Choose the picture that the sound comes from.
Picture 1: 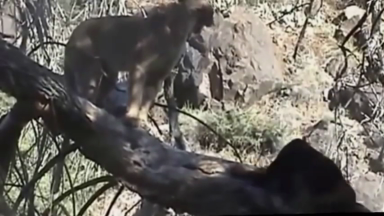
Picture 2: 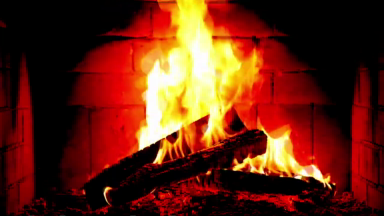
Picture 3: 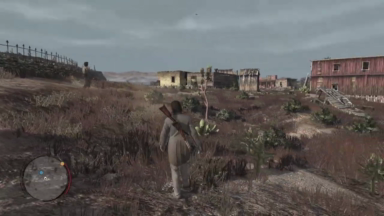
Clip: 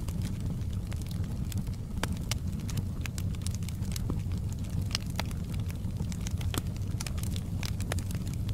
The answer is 2